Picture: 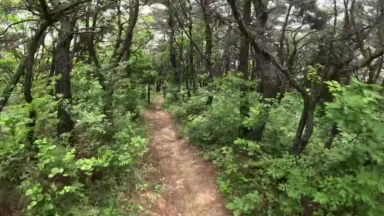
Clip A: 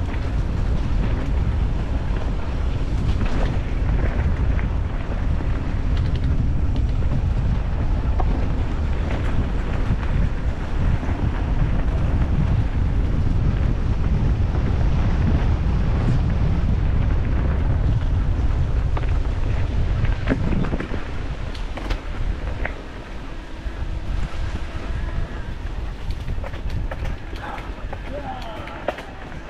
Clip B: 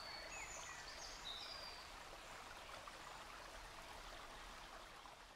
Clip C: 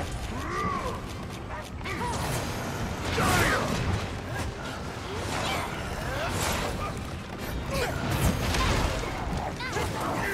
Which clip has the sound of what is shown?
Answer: A